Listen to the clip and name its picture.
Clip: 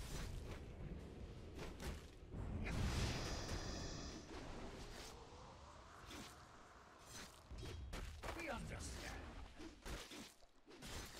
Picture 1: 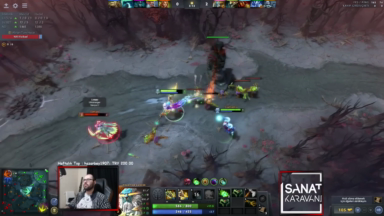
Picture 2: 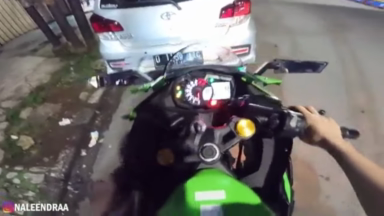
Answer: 1